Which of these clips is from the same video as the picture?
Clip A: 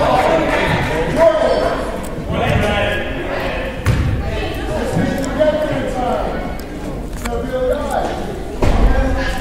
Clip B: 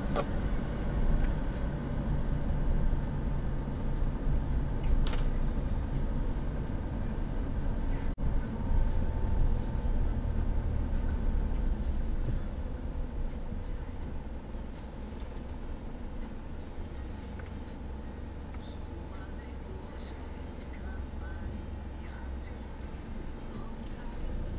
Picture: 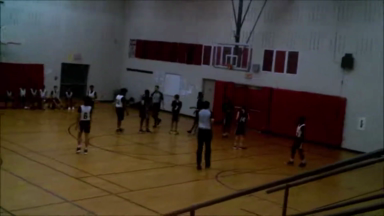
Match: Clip A